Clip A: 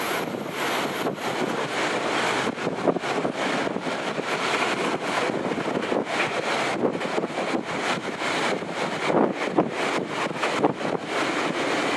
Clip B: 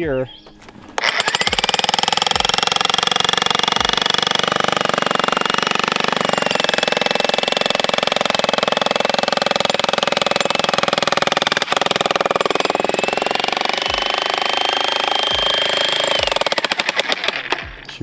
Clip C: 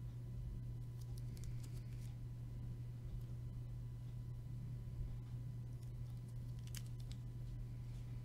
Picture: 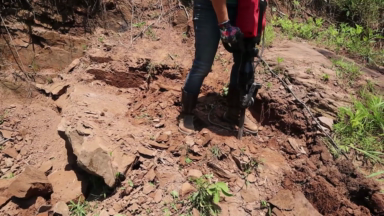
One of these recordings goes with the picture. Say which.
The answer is B